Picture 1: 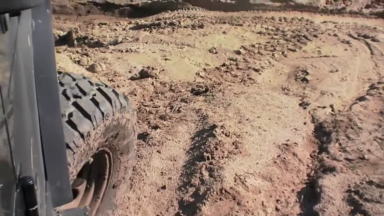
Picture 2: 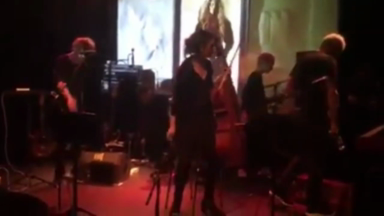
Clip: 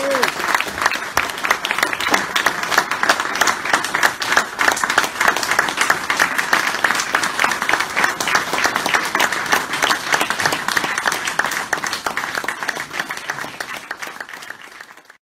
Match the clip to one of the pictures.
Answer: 2